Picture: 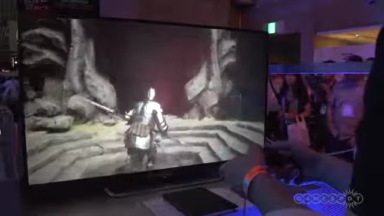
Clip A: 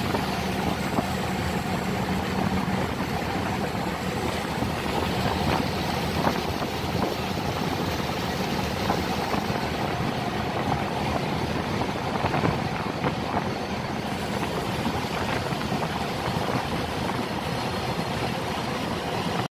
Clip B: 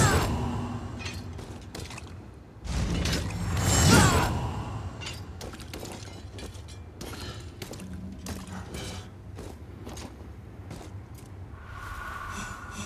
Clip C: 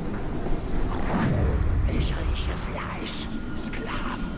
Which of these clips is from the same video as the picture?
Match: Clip B